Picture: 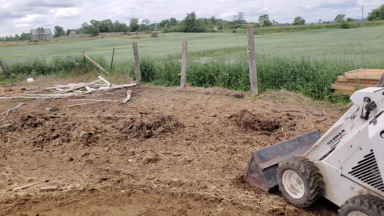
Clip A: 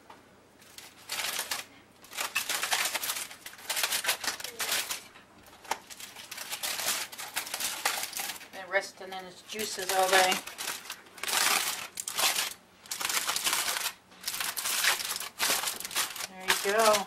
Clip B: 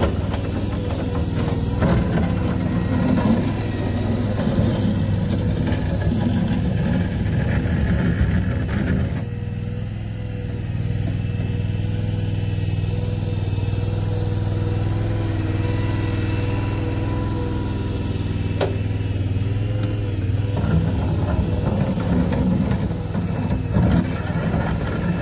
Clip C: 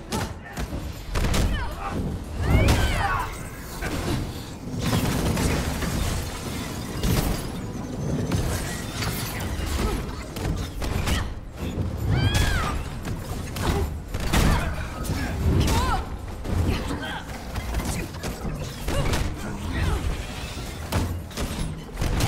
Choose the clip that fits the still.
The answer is B